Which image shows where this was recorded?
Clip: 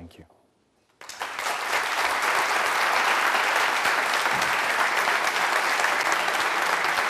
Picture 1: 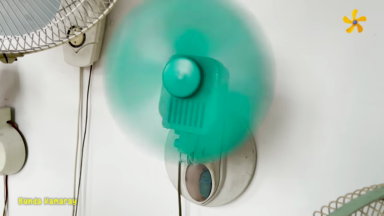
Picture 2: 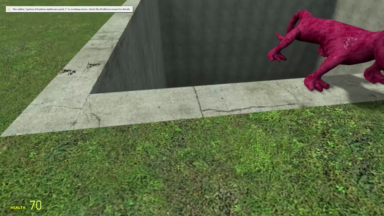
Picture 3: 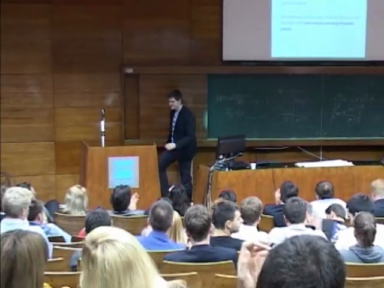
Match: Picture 3